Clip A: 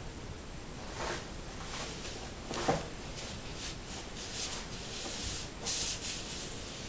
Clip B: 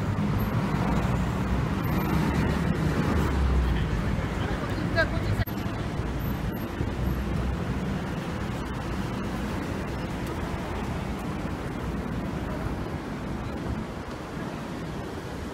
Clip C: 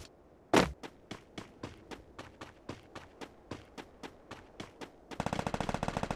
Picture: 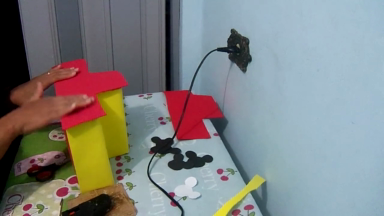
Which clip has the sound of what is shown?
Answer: A